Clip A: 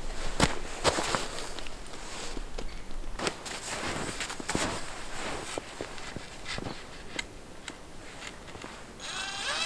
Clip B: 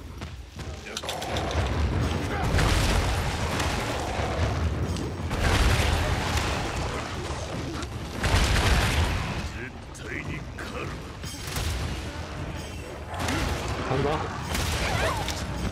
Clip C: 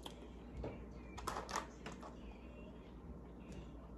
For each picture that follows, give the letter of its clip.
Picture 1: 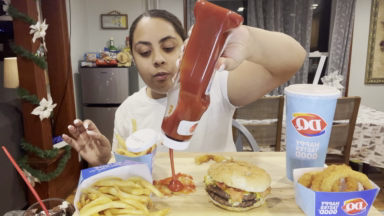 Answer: C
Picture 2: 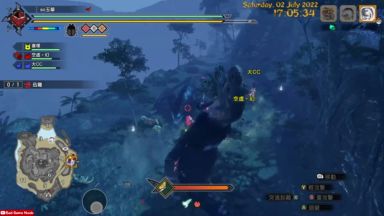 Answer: B